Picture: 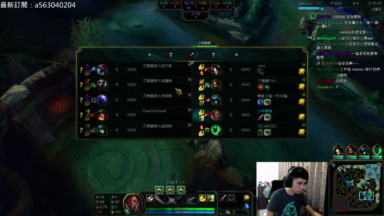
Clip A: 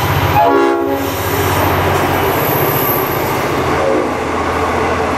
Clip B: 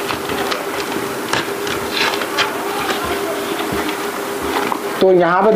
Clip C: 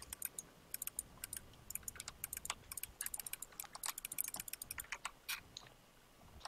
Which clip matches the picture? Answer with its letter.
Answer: C